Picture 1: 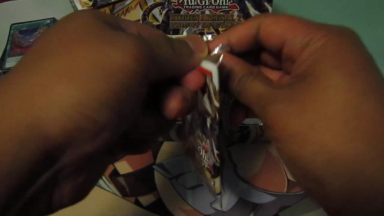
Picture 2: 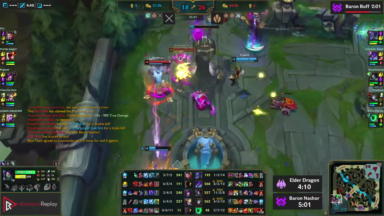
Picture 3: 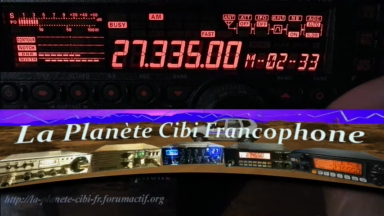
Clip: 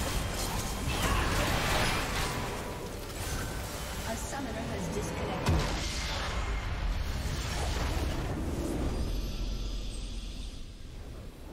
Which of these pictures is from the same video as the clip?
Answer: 2